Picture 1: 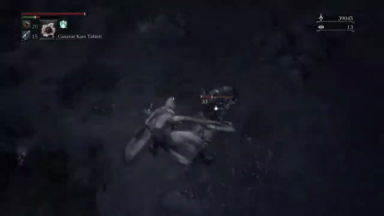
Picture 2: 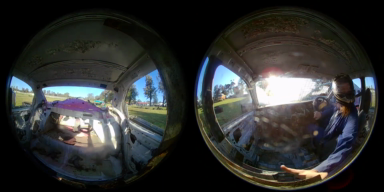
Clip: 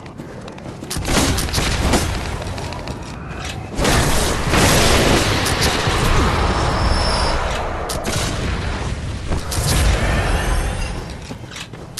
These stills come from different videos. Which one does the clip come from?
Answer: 1